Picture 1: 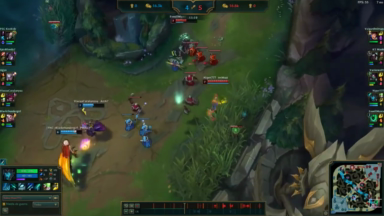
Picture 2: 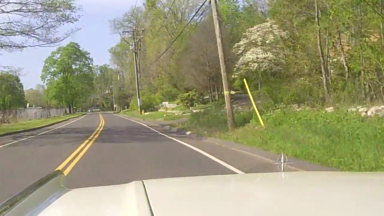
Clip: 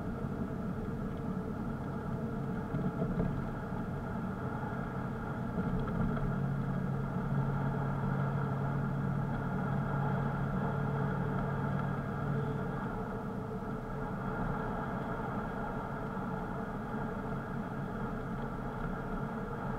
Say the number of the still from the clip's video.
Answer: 2